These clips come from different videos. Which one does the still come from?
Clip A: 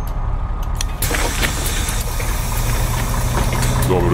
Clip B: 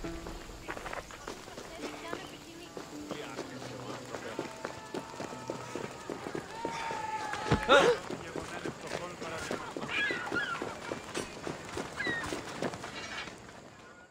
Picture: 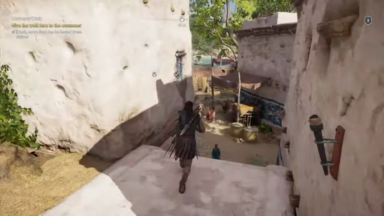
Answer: B